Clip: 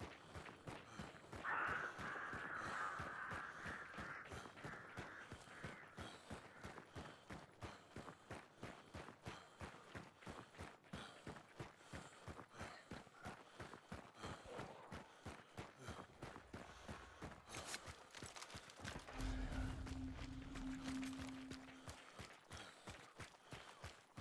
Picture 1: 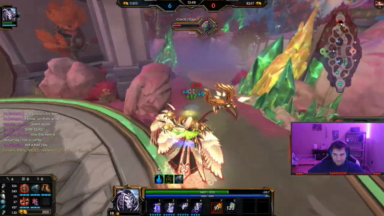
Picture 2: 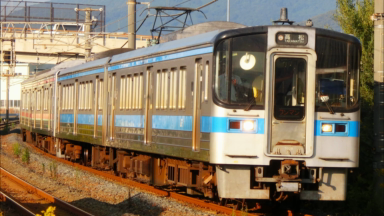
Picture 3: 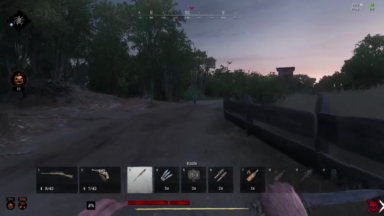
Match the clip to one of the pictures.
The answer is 3